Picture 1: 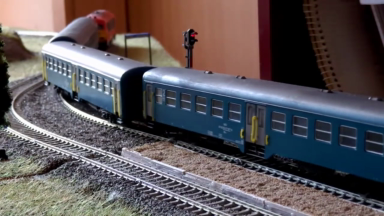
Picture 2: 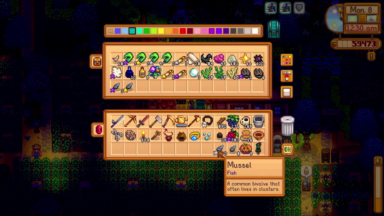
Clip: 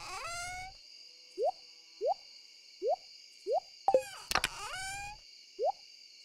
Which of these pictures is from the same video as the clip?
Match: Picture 2